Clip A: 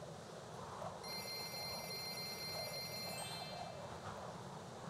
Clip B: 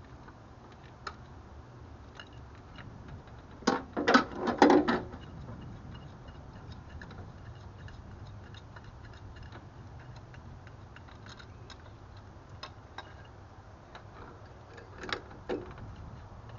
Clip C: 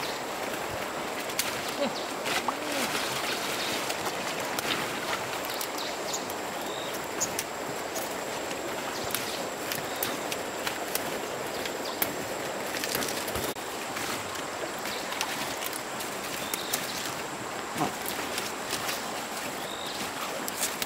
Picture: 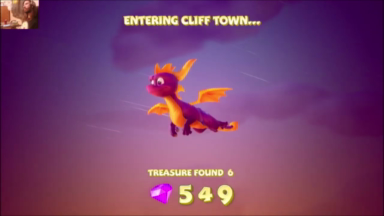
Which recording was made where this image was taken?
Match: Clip A